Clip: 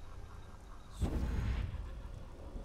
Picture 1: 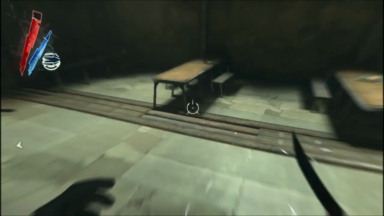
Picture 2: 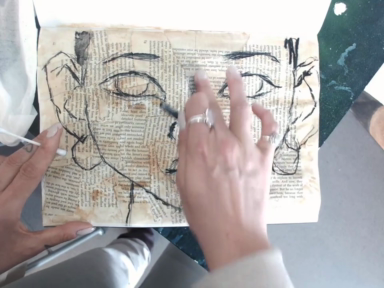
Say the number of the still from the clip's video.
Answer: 1